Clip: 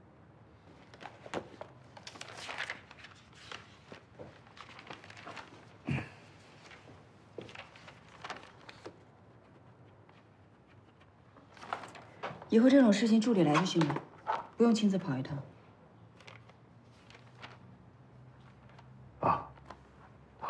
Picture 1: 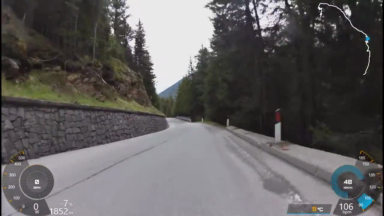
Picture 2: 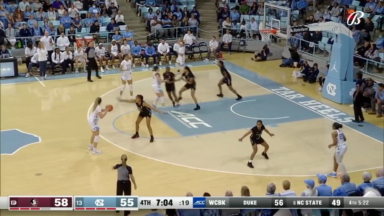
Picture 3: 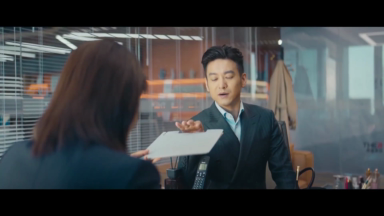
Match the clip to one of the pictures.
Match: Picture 3